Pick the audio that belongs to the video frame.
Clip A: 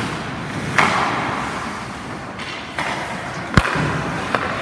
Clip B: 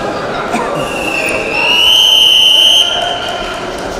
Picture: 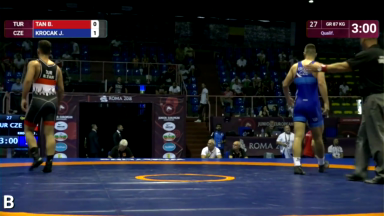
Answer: B